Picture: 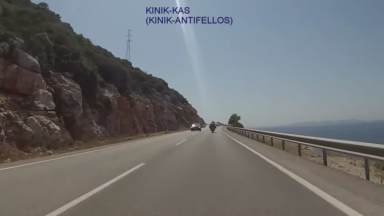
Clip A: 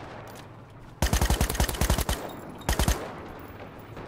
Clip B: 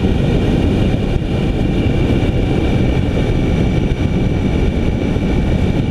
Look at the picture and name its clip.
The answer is B